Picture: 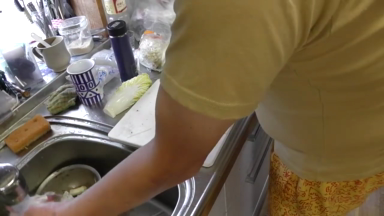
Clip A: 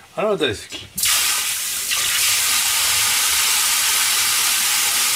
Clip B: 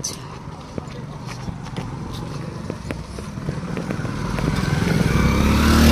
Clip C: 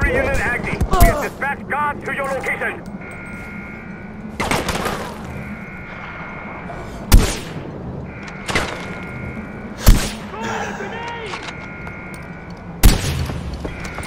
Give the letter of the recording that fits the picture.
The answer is A